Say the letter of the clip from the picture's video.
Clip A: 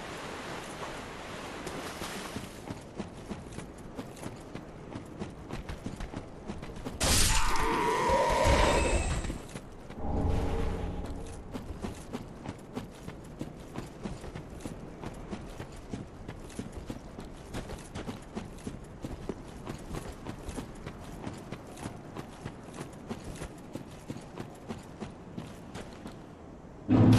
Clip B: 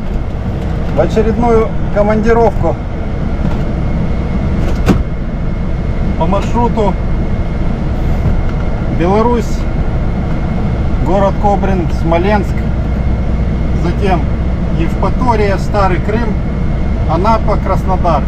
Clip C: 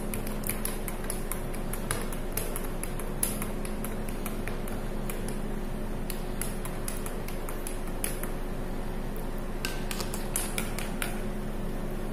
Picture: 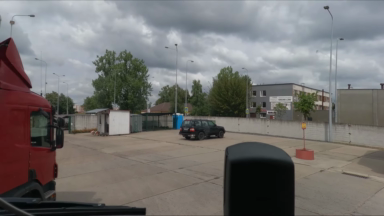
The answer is B